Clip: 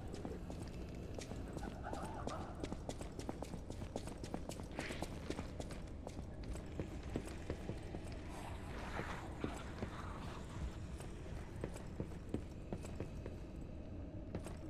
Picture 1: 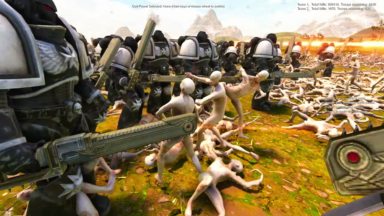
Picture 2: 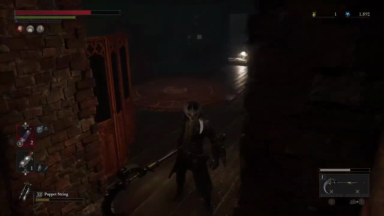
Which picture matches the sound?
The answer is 2